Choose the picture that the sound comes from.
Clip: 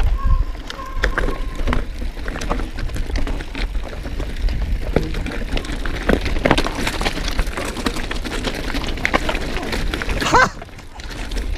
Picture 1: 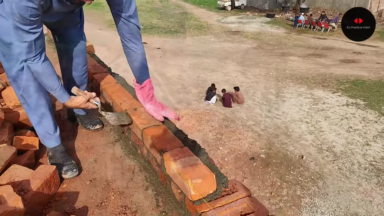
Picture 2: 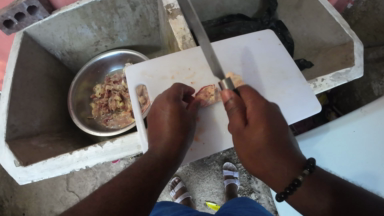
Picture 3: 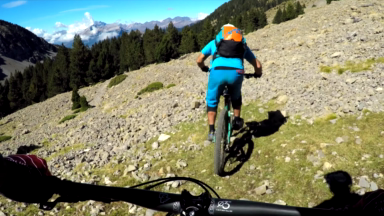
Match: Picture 3